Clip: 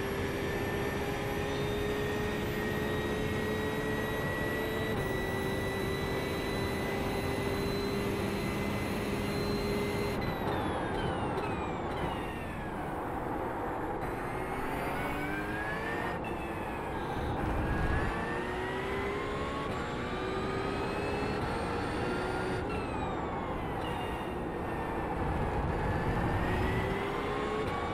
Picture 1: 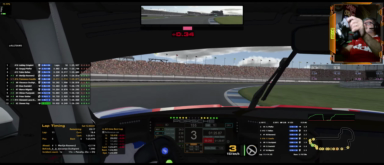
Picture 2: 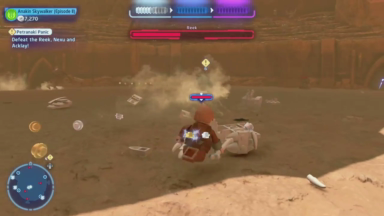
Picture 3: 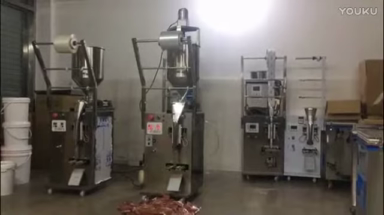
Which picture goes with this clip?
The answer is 1